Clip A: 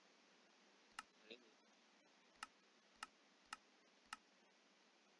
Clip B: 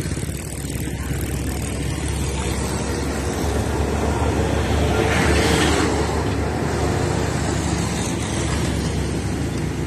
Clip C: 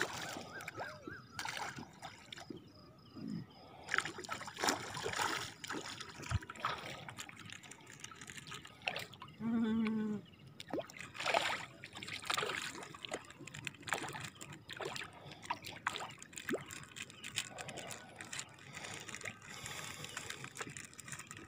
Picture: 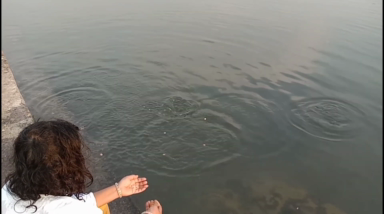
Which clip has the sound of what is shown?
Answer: C